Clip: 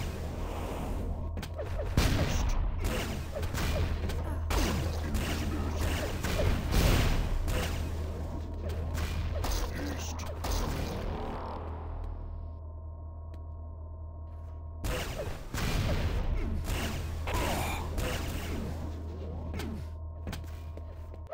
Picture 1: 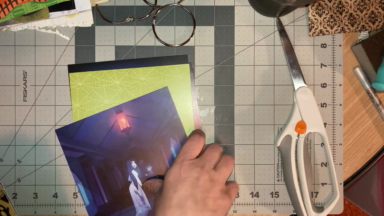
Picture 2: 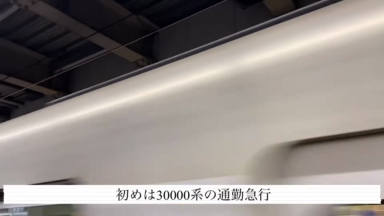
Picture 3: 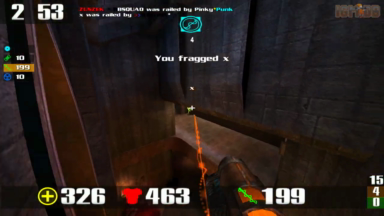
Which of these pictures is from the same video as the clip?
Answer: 3